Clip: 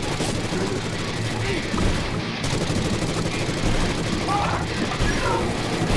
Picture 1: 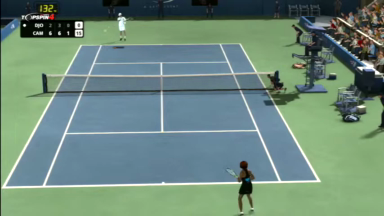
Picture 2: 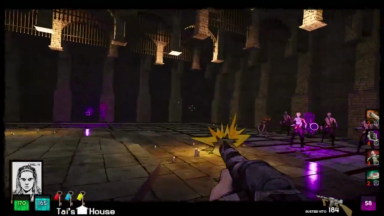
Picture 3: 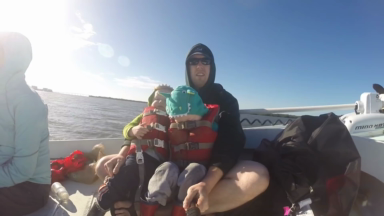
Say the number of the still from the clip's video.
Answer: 2